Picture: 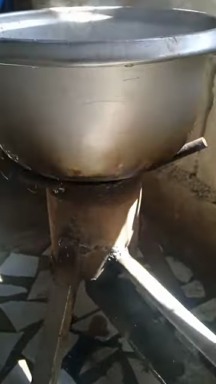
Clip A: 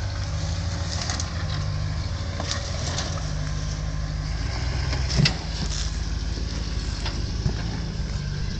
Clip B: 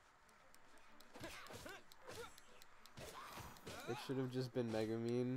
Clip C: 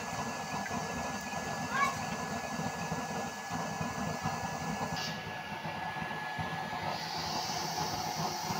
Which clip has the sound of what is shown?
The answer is C